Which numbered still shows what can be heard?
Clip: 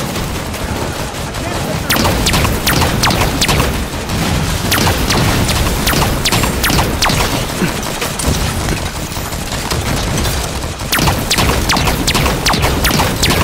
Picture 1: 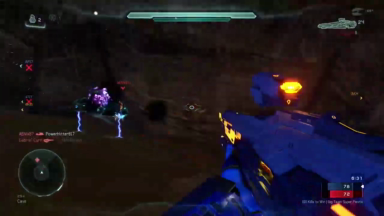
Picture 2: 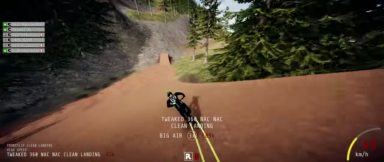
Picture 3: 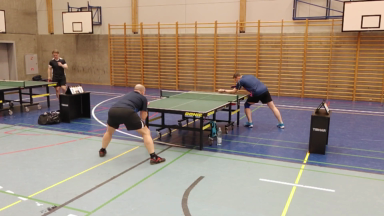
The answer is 1